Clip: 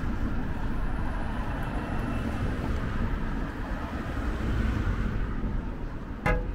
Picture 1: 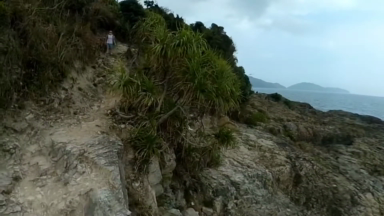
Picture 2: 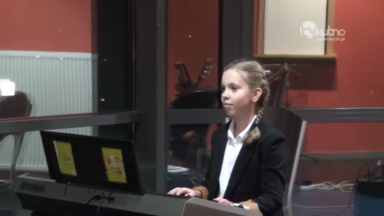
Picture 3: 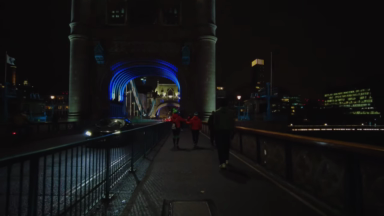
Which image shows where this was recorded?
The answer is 3